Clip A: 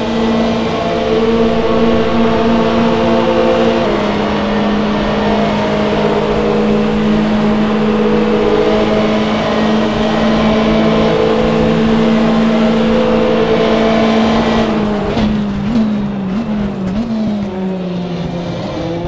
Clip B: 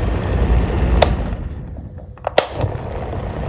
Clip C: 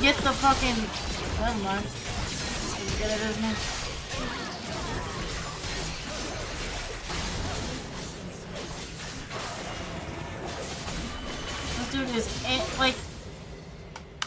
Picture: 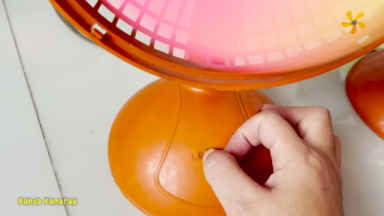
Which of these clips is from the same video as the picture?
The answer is B